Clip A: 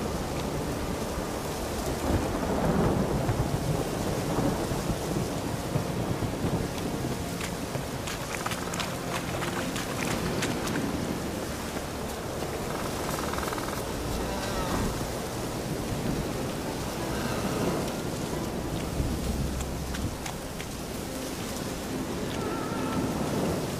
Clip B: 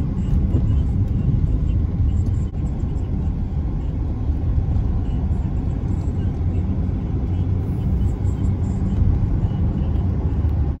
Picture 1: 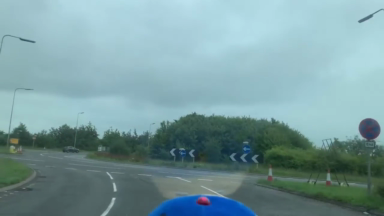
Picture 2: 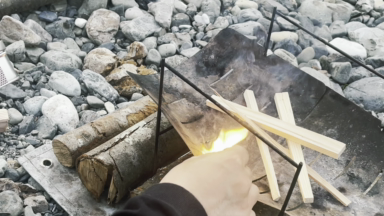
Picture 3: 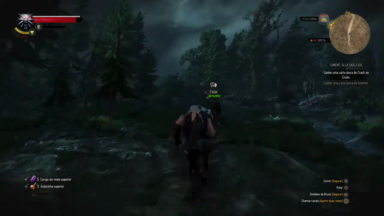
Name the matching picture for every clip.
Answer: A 3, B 1